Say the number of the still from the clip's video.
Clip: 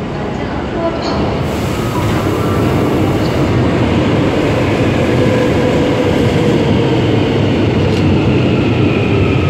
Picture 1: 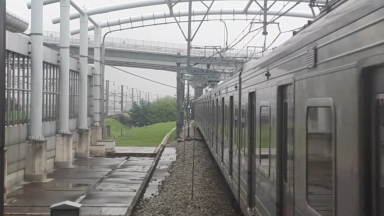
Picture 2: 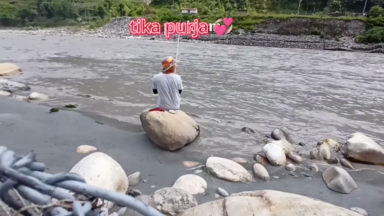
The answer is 1